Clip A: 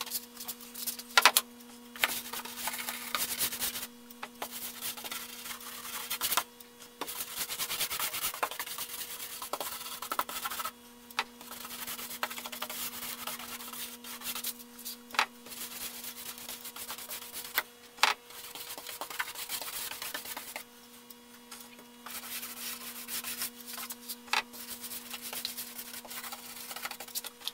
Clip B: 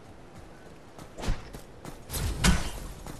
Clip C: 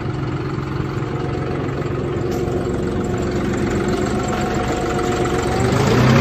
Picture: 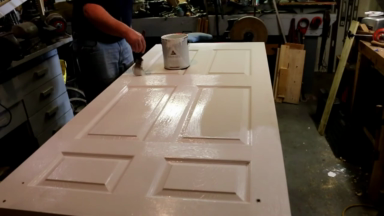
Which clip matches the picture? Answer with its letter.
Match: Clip A